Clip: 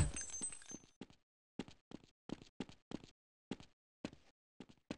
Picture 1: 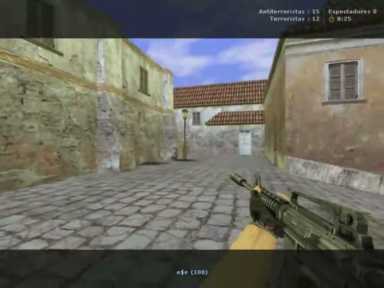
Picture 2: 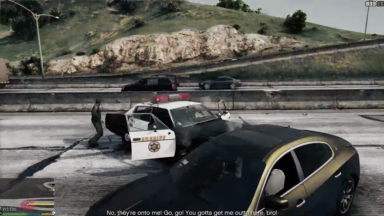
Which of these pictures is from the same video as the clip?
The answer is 1